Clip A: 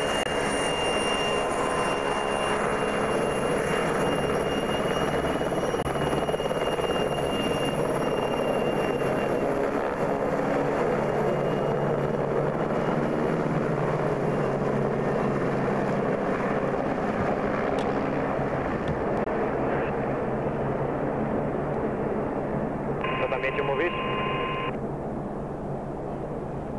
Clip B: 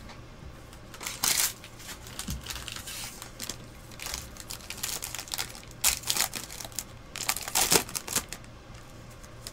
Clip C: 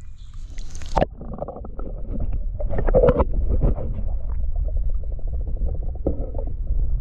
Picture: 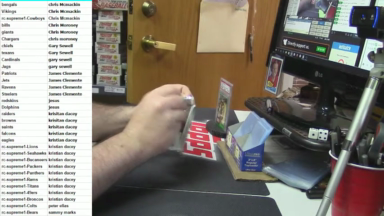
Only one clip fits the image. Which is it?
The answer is B